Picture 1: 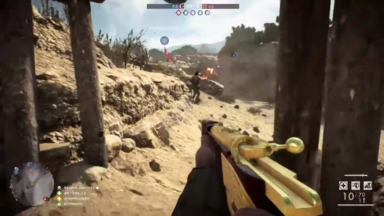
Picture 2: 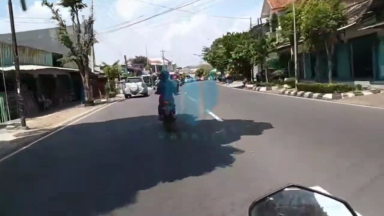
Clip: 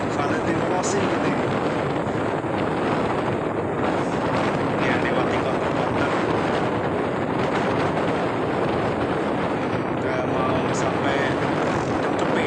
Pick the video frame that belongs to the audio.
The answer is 2